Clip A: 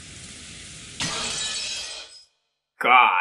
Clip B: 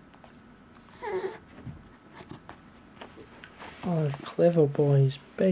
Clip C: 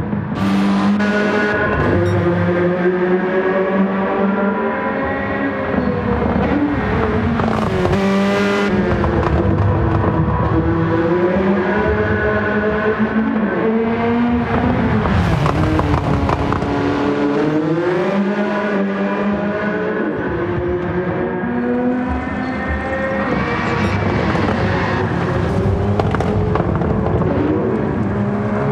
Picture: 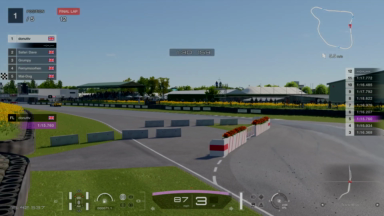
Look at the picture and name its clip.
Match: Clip C